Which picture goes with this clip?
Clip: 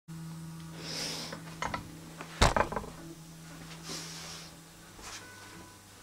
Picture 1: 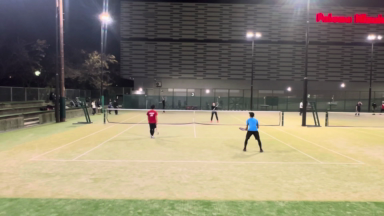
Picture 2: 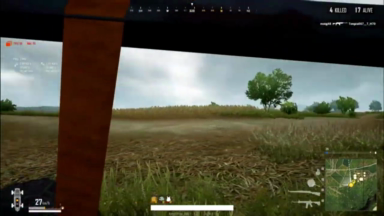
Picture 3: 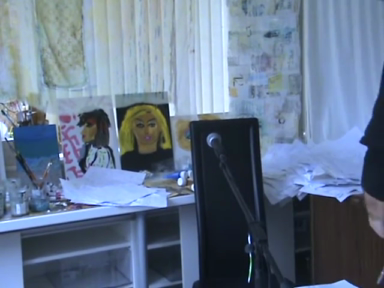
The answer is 3